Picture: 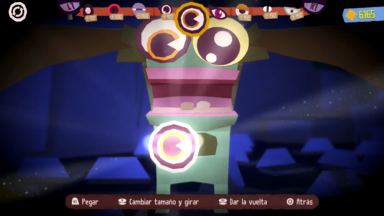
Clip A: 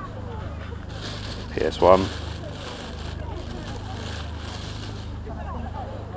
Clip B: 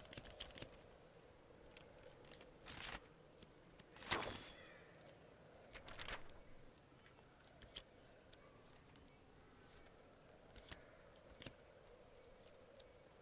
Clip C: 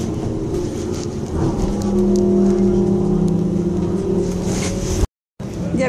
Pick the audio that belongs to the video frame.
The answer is B